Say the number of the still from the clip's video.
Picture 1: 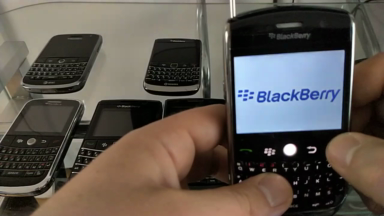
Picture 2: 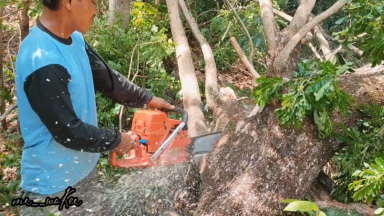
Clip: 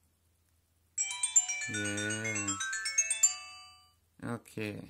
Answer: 1